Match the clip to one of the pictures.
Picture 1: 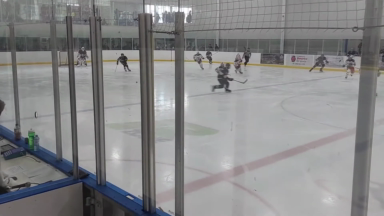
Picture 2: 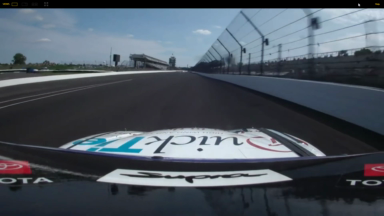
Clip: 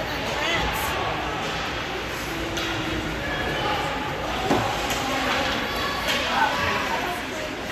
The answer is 1